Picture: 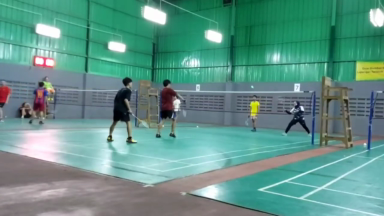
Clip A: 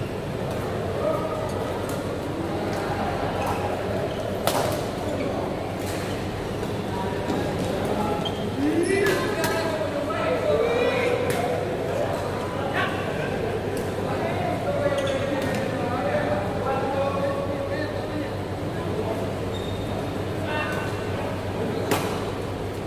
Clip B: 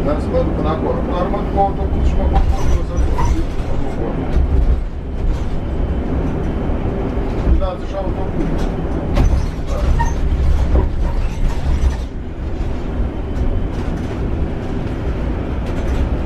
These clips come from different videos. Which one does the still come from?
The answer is A